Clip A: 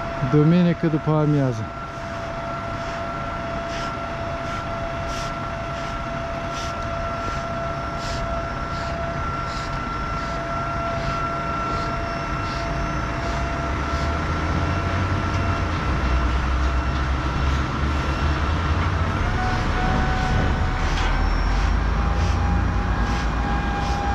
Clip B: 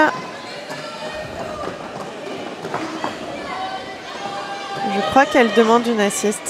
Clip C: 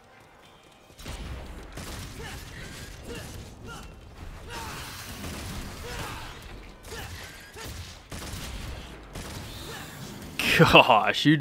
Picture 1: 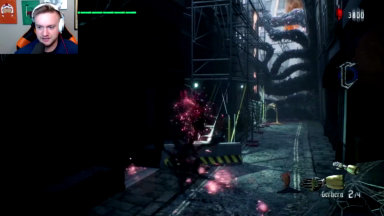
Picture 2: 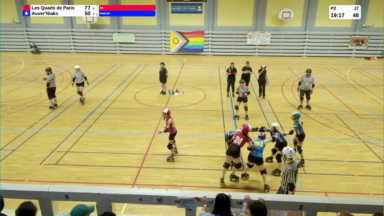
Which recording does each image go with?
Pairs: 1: C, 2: B